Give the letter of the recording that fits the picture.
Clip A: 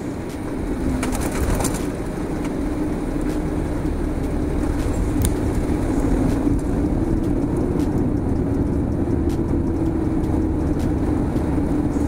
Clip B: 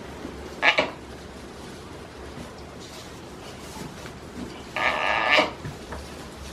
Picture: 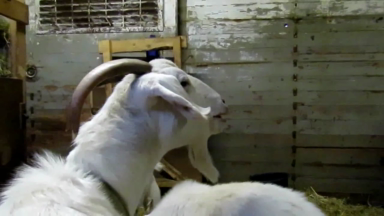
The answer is B